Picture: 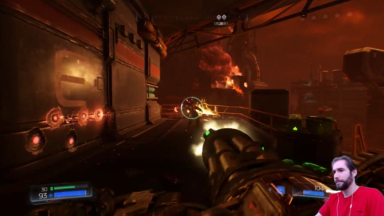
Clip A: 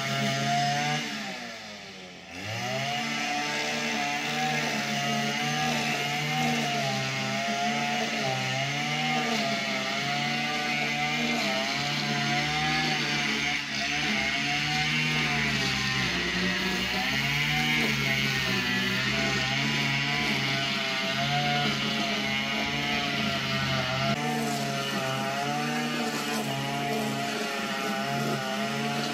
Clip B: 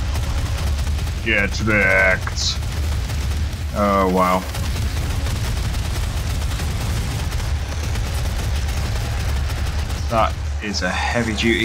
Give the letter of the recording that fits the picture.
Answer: B